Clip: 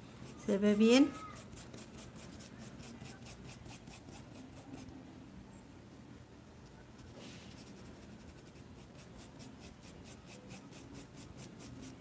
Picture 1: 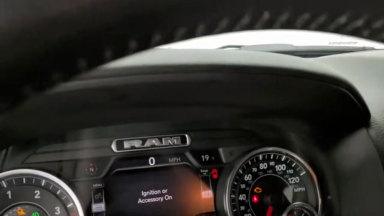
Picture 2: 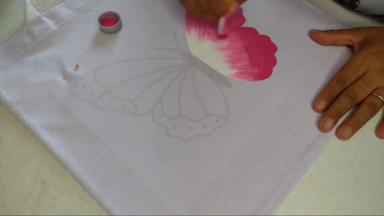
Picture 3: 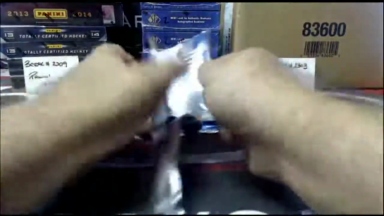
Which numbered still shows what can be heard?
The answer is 2